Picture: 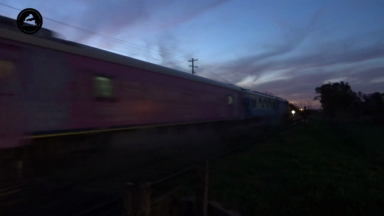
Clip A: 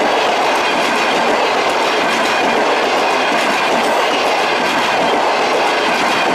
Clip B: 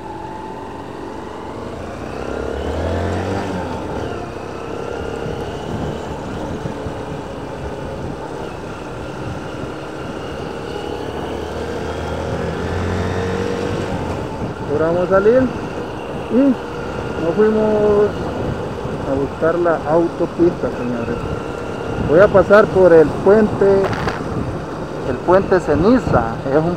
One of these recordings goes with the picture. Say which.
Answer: A